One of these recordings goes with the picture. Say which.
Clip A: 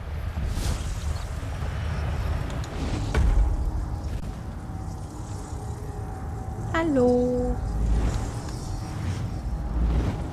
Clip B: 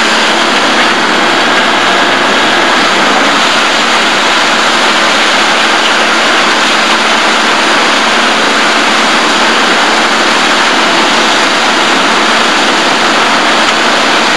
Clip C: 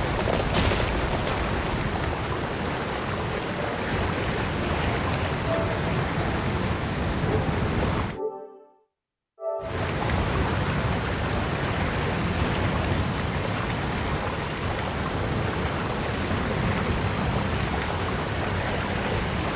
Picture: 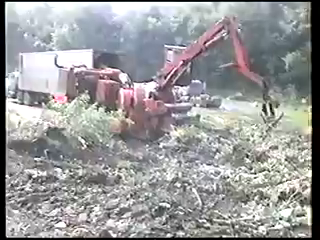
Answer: B